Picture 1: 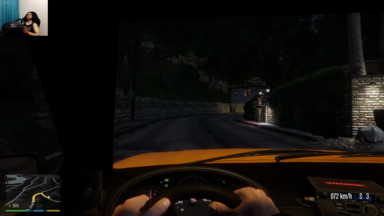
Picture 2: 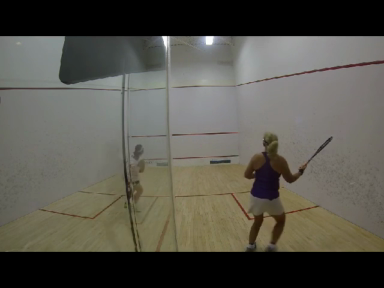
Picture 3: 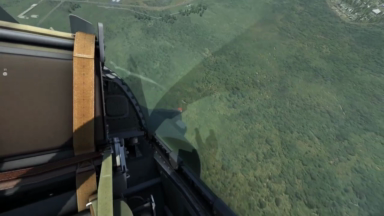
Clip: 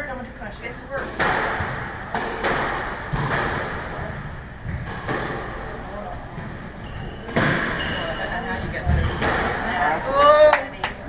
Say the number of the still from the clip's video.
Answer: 2